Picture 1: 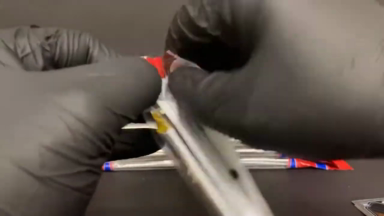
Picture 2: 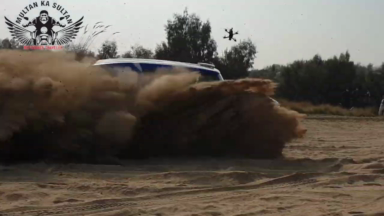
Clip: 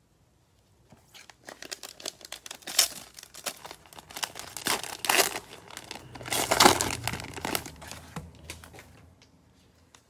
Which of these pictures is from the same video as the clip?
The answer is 1